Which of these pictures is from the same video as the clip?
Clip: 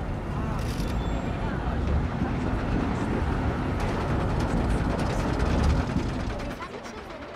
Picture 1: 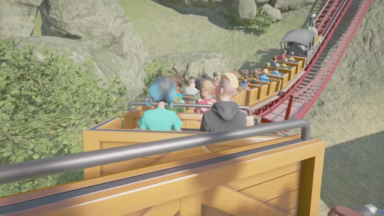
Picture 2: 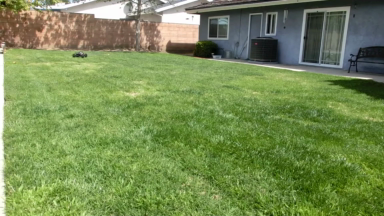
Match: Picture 1